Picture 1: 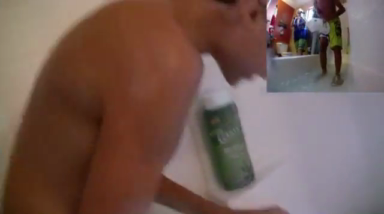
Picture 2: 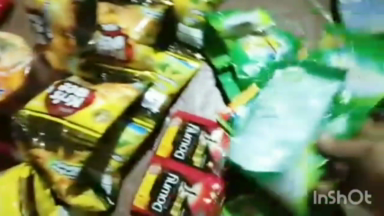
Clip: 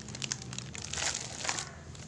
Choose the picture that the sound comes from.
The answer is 2